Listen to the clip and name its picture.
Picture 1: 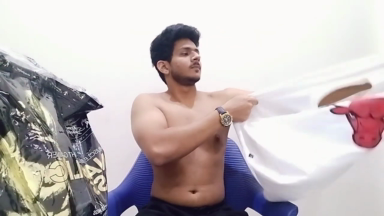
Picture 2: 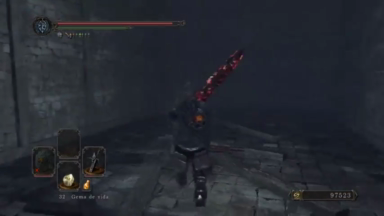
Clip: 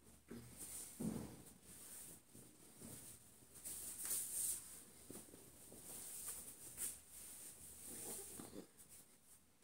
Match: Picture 1